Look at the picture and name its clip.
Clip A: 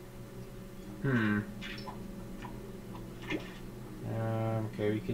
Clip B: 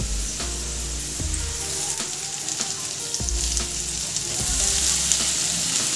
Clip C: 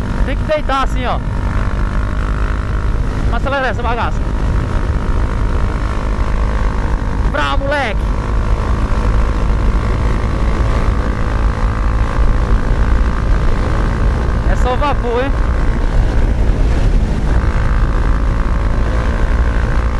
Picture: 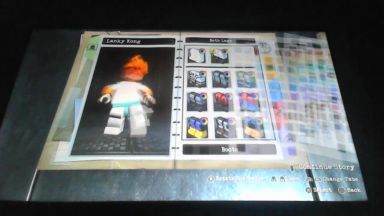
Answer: A